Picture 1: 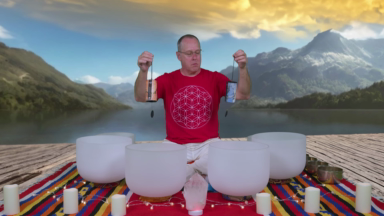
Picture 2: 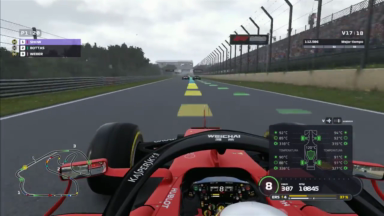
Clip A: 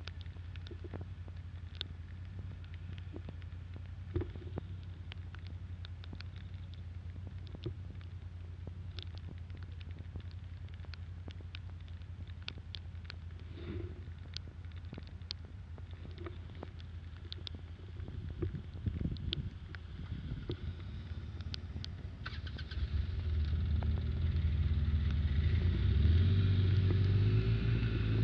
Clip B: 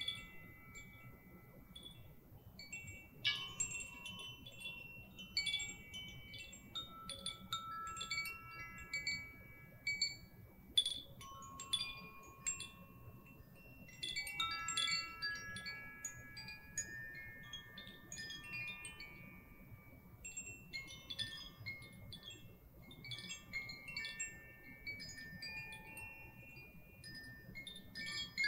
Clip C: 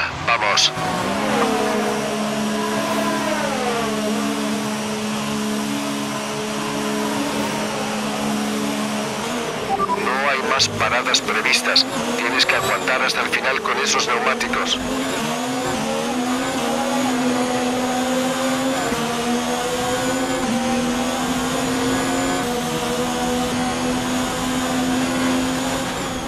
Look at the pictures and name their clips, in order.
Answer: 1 B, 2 C